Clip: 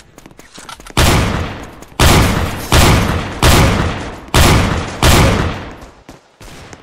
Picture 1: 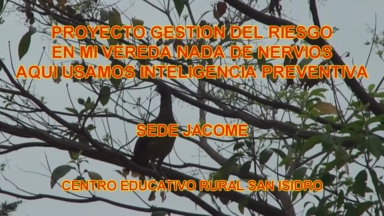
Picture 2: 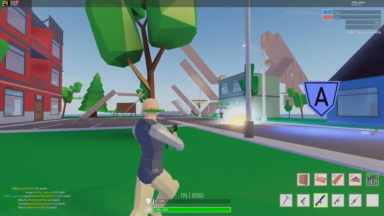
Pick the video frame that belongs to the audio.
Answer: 2